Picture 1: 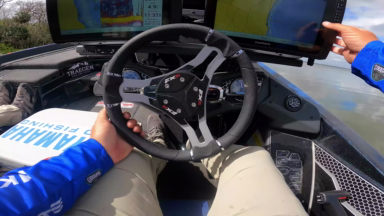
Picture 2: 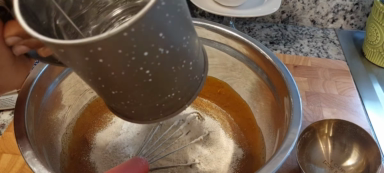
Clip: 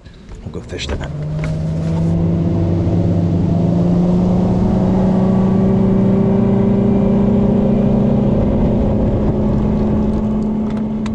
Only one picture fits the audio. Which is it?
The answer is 1